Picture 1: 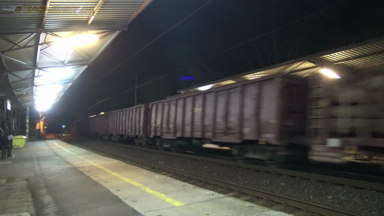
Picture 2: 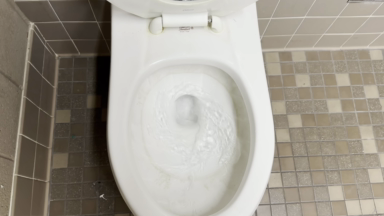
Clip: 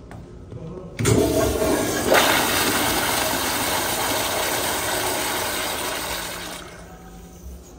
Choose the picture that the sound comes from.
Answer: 2